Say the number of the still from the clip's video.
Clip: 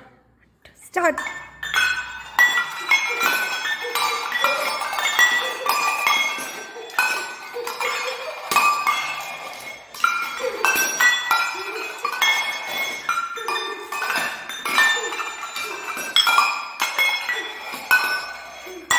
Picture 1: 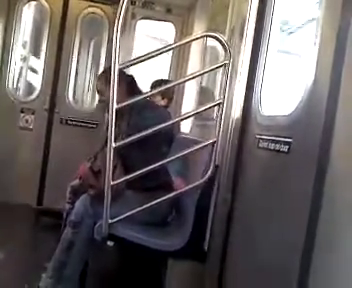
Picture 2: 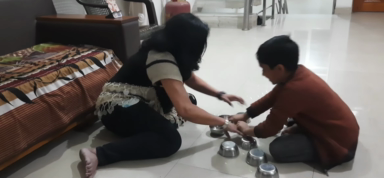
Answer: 2